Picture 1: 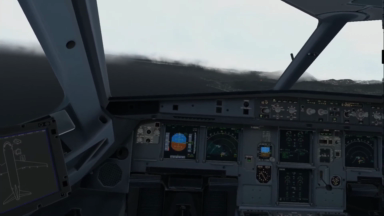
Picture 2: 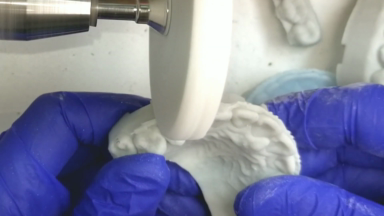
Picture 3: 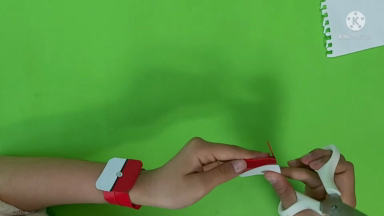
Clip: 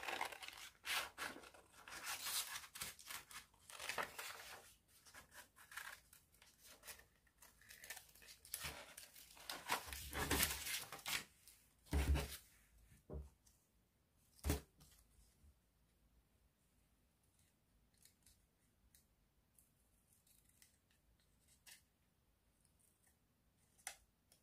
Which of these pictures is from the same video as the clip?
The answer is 3